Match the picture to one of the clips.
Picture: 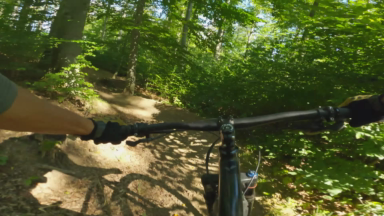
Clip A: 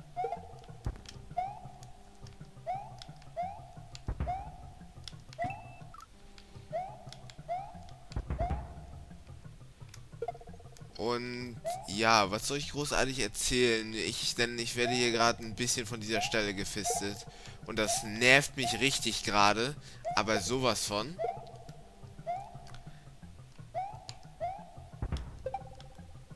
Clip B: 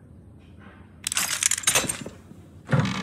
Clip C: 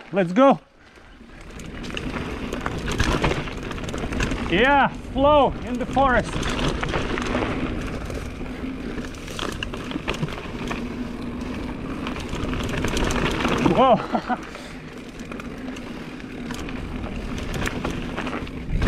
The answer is C